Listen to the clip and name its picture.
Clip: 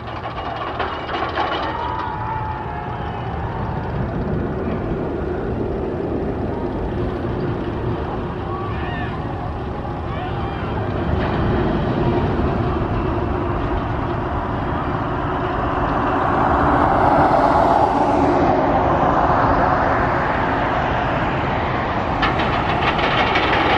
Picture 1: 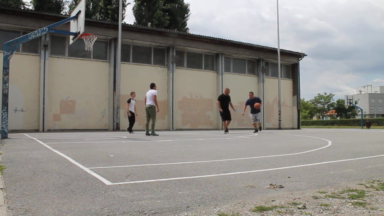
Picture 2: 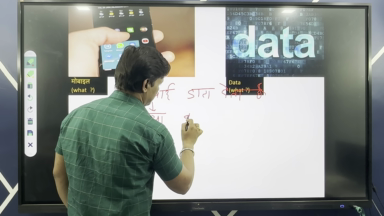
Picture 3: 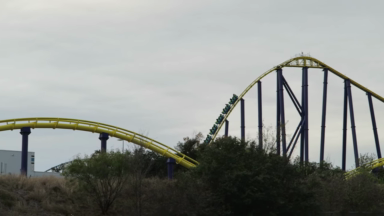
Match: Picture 3